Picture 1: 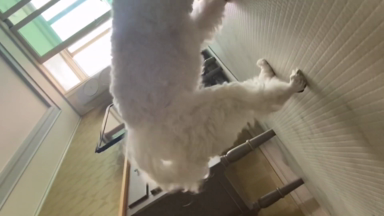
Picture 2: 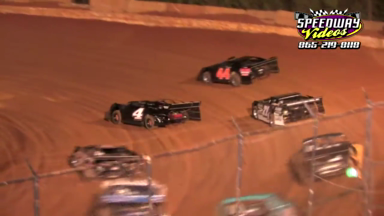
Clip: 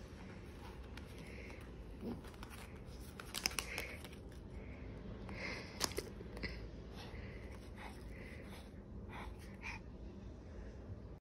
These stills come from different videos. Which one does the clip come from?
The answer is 1